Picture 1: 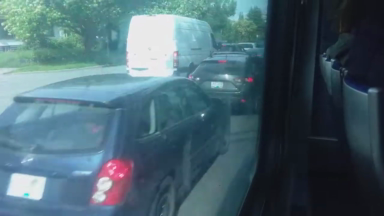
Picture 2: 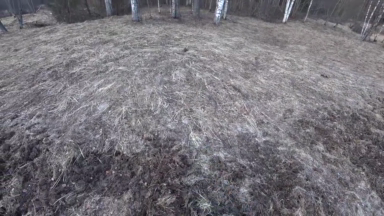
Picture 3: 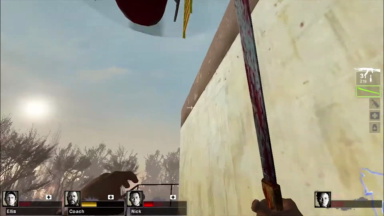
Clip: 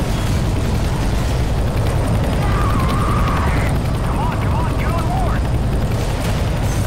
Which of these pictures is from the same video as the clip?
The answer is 3